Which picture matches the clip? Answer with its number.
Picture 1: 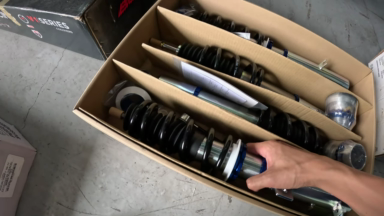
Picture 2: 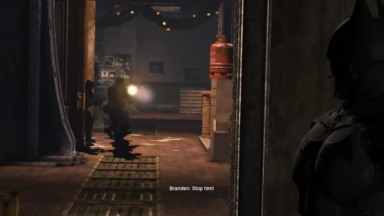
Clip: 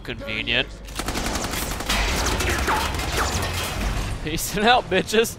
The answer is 2